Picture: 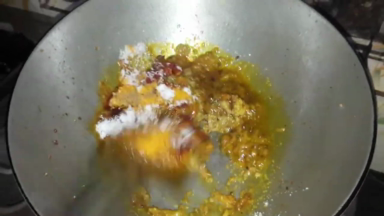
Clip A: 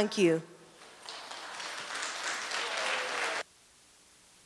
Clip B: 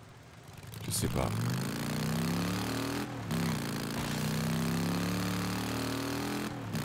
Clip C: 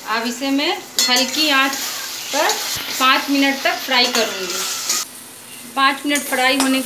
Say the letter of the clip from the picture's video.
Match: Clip C